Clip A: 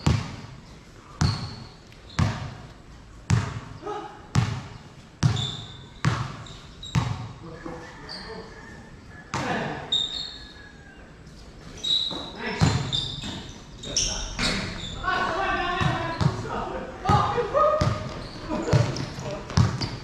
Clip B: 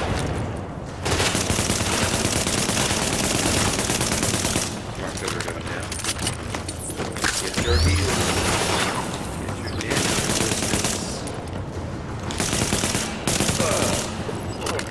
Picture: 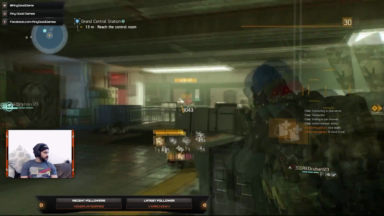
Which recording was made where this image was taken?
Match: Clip B